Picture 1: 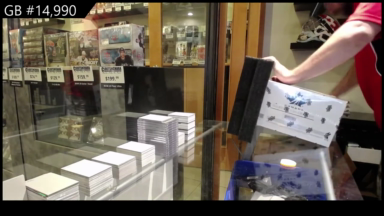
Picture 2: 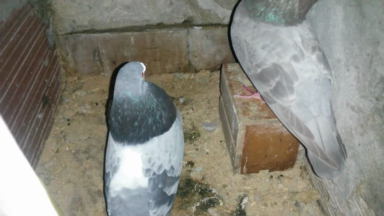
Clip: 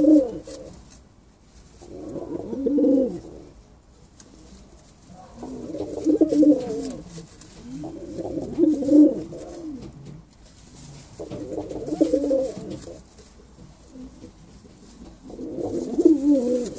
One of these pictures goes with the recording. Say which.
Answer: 2